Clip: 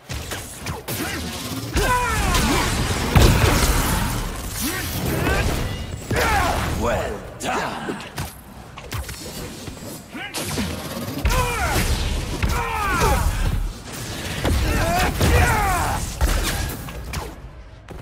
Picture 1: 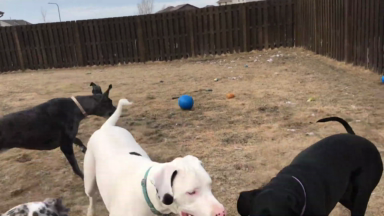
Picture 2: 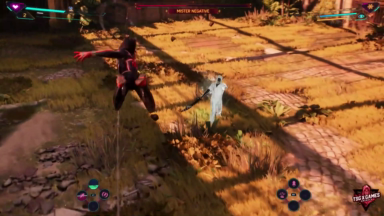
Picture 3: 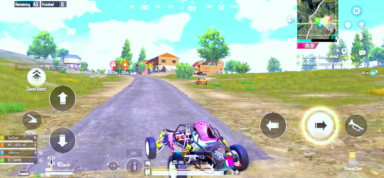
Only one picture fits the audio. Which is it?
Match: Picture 2